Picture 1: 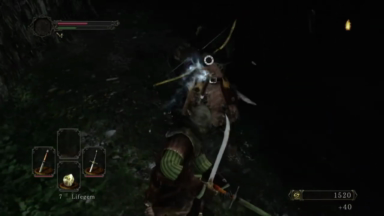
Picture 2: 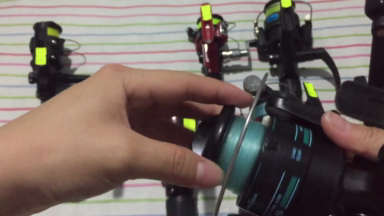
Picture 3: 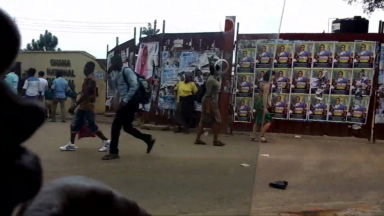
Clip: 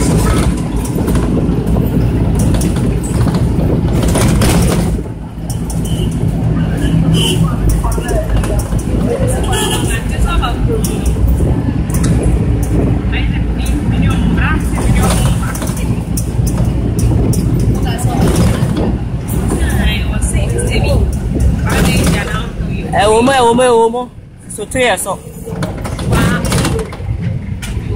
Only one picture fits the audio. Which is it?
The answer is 3